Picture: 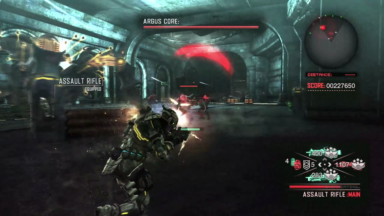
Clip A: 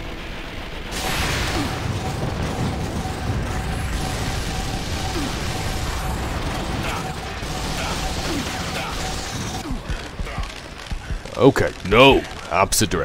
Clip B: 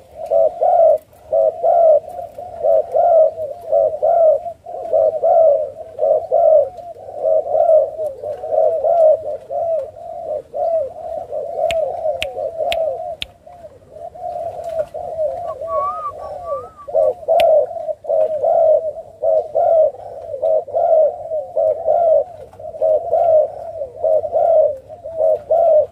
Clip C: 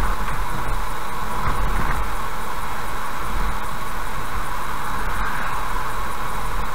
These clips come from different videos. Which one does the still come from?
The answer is A